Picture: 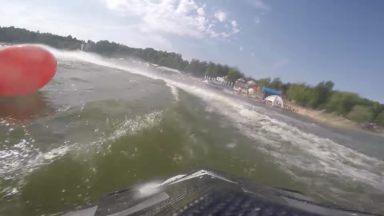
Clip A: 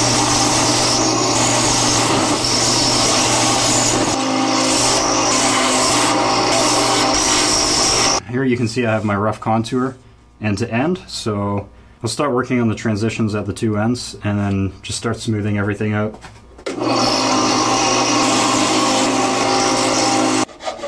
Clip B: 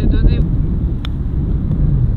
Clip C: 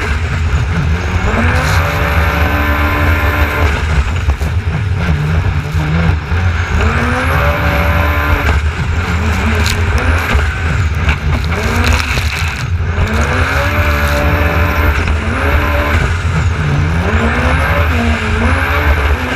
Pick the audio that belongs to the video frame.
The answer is C